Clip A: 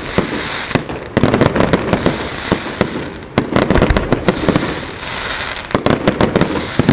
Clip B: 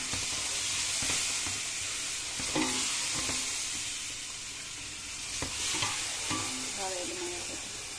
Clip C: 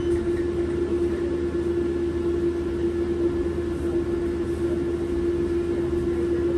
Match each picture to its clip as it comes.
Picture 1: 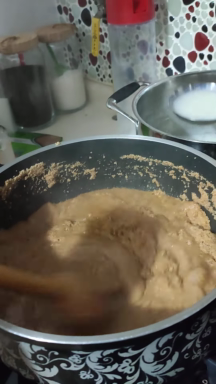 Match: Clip B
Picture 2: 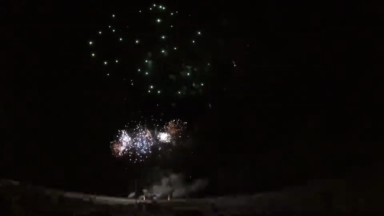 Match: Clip A